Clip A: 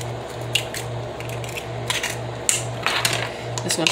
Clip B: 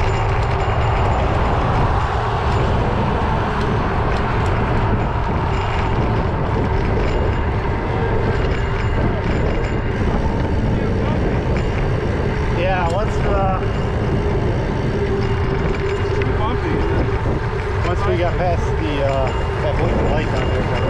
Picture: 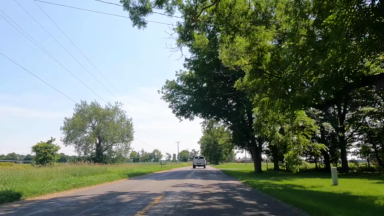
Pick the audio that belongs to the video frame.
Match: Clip B